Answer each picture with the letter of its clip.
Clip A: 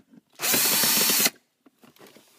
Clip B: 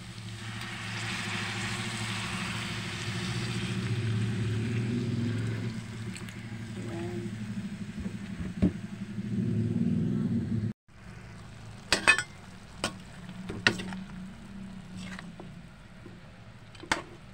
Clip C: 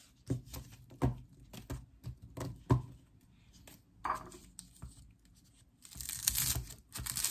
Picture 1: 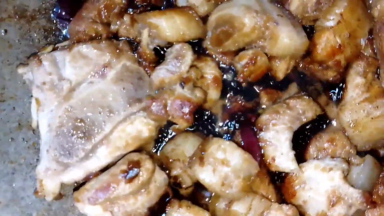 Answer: B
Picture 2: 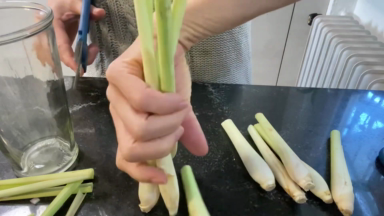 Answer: C